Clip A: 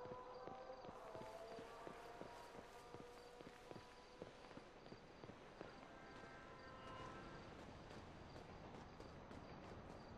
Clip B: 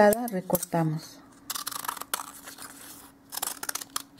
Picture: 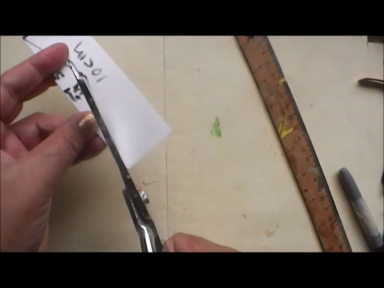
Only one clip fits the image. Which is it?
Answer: B